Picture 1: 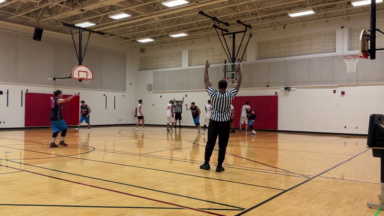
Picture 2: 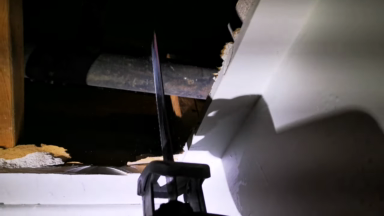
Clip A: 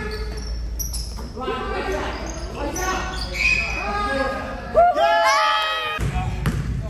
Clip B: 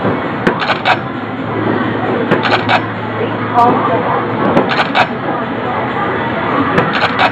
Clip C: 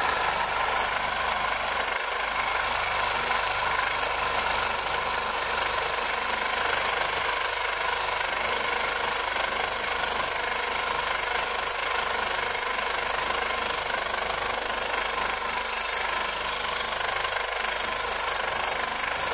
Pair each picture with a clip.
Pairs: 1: A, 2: C